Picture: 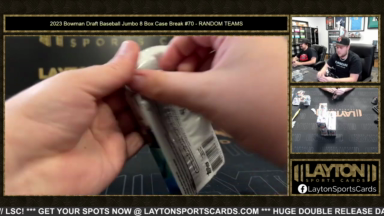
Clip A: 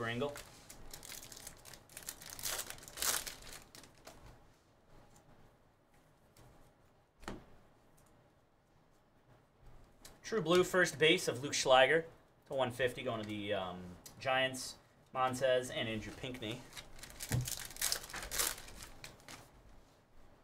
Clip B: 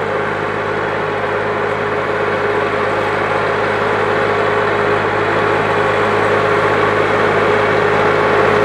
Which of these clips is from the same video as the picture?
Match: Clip A